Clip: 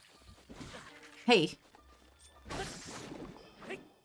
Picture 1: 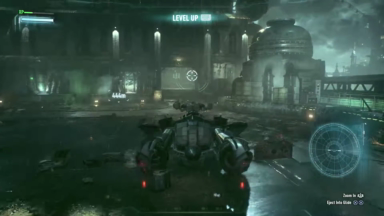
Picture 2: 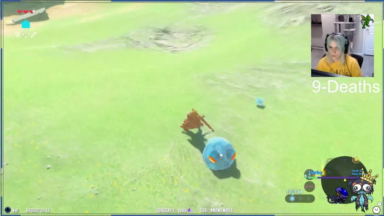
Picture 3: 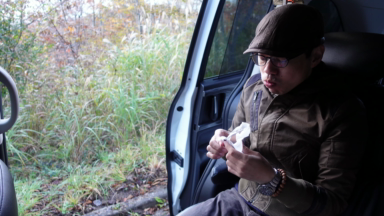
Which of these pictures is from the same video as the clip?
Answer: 2